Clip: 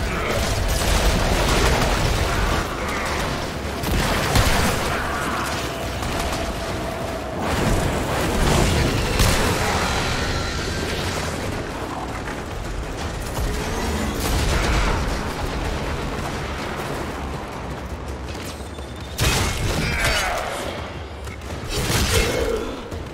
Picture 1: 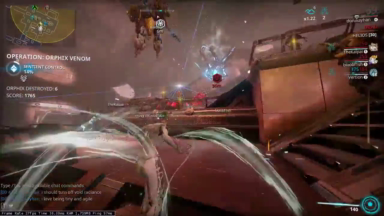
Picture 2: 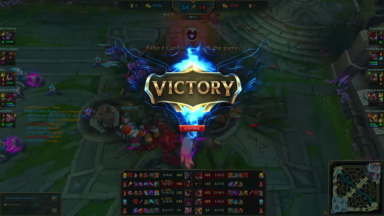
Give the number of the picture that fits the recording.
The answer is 1